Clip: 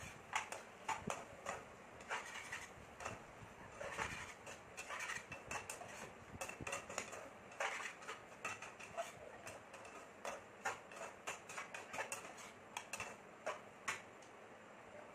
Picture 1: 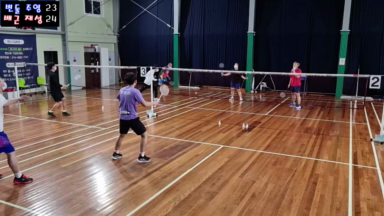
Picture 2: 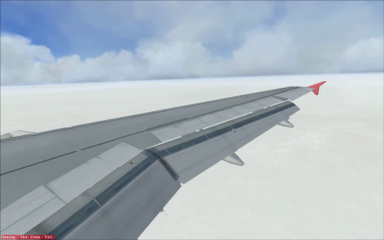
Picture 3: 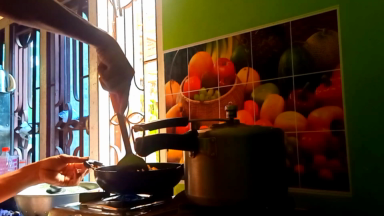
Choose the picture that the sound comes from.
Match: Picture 3